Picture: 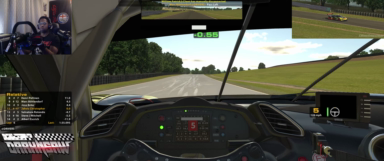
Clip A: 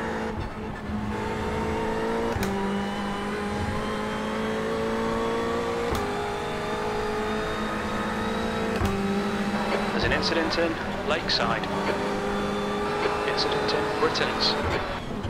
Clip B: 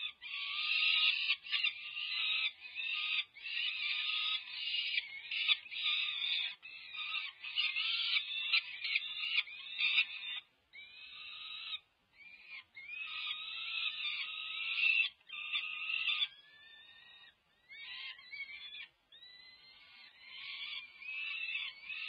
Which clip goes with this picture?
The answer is A